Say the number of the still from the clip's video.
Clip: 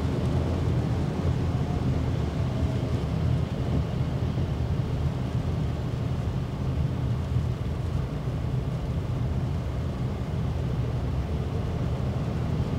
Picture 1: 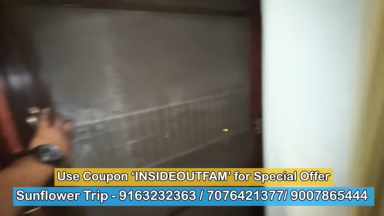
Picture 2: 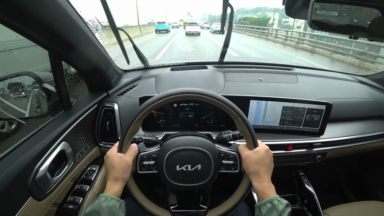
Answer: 2